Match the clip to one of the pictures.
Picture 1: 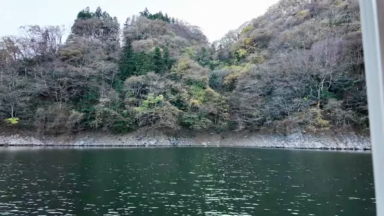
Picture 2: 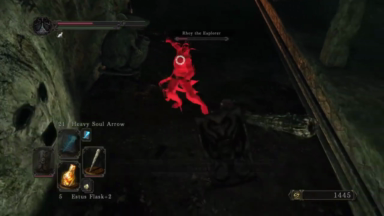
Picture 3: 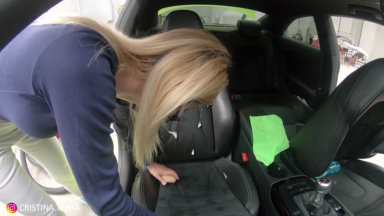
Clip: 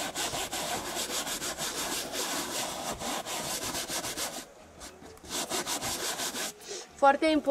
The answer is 3